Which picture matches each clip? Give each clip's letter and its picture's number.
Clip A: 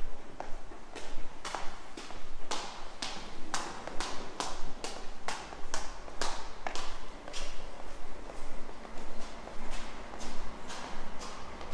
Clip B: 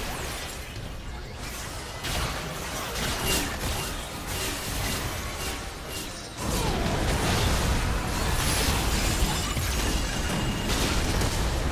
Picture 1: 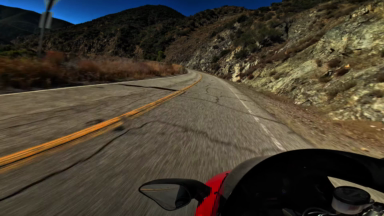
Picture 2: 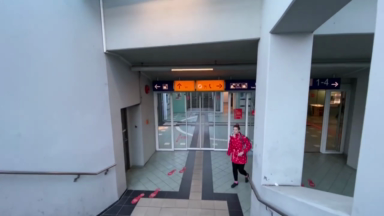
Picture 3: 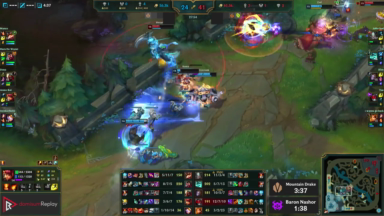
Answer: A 2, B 3